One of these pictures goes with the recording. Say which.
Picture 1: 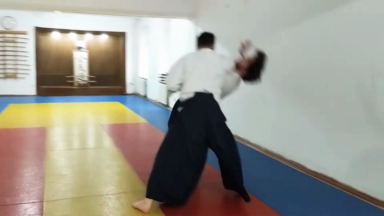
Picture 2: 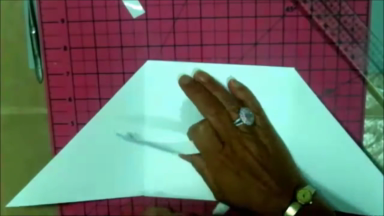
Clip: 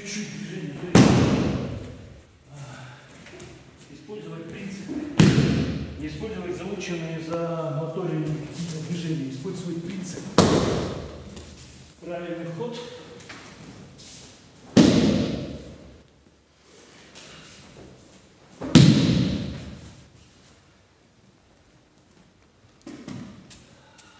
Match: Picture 1